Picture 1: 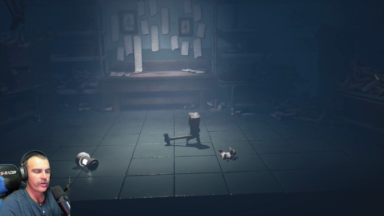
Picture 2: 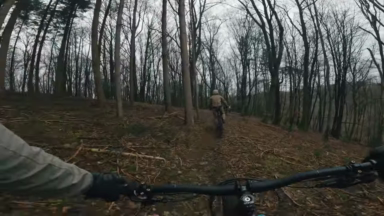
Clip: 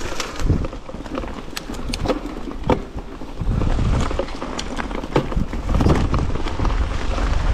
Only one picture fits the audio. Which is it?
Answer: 2